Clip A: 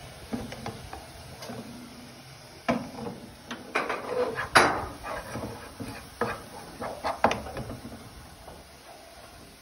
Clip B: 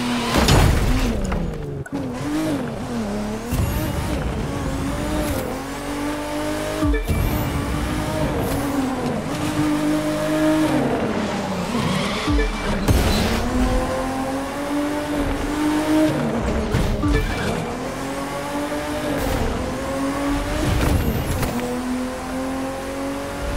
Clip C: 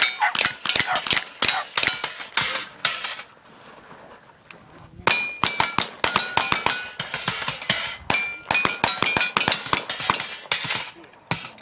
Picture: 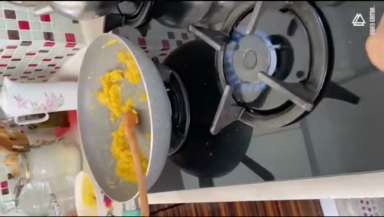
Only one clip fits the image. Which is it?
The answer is A